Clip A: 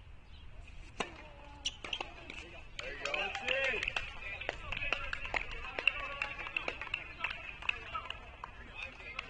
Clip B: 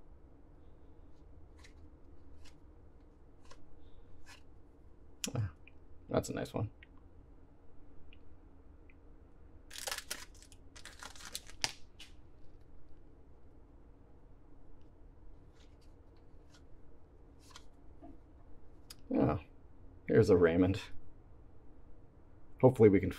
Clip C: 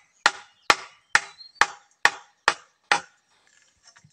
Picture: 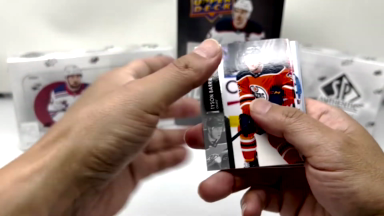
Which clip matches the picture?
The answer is B